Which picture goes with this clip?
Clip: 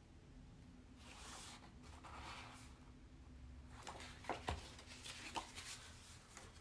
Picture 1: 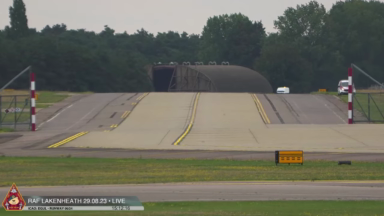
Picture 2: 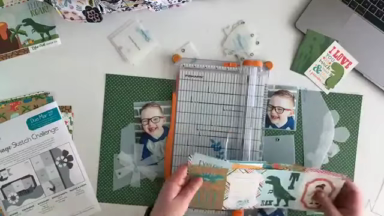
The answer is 2